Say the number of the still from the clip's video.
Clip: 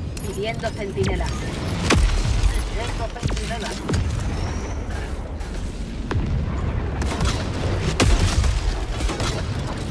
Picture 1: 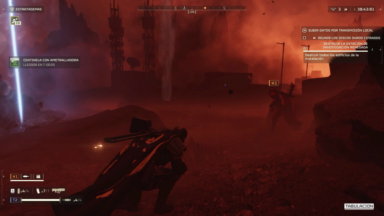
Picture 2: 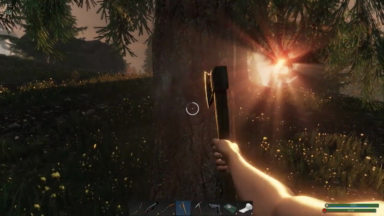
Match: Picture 1